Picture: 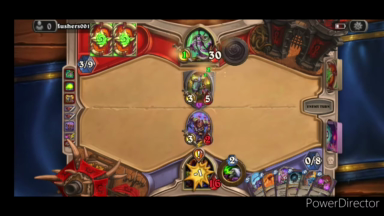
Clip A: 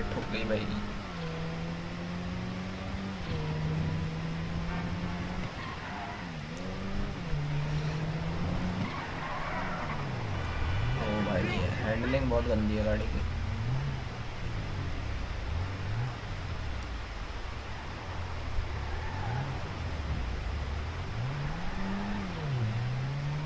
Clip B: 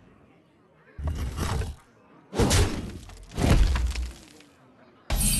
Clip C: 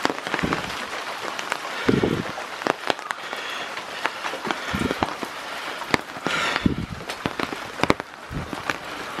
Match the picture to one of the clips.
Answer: B